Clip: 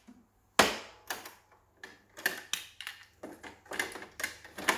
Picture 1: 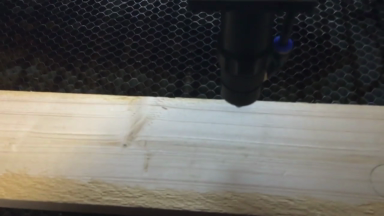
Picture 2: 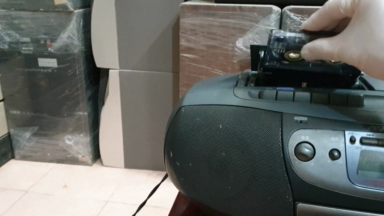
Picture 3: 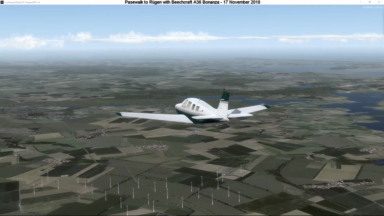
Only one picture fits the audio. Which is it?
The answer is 2